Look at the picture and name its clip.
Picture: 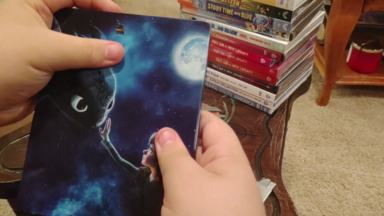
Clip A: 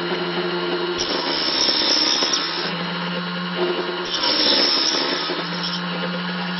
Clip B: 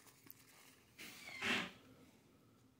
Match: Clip B